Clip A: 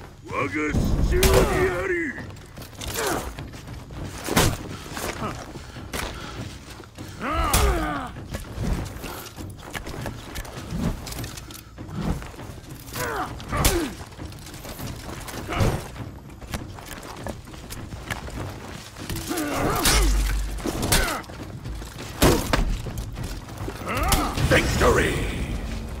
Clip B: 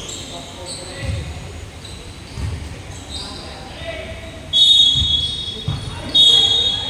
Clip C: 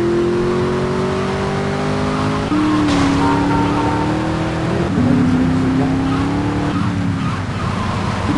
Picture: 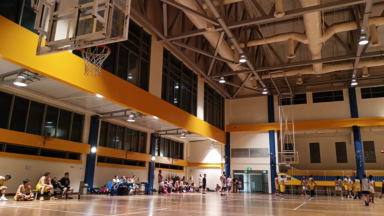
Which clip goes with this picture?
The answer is B